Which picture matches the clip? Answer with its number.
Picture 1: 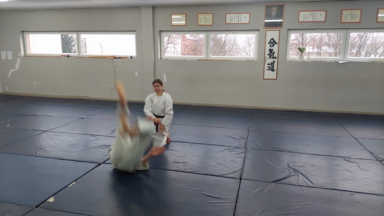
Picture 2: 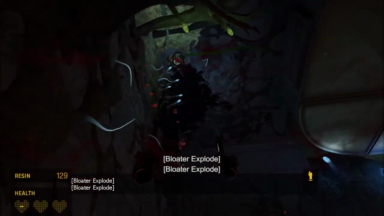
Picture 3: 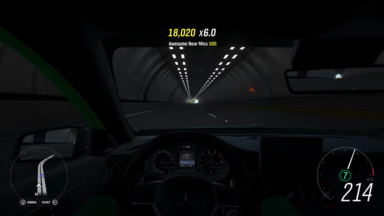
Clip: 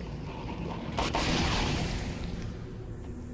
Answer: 2